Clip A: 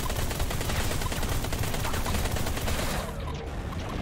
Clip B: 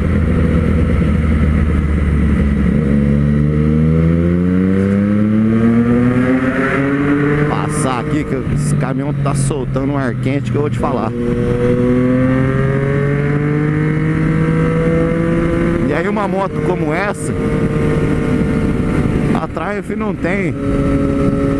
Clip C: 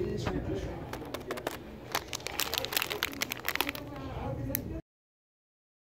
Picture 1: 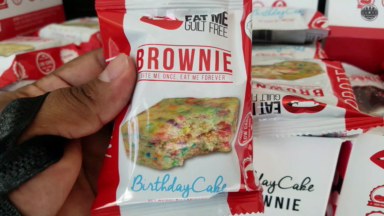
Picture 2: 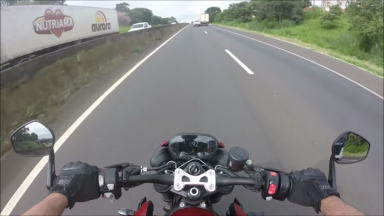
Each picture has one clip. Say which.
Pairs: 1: C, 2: B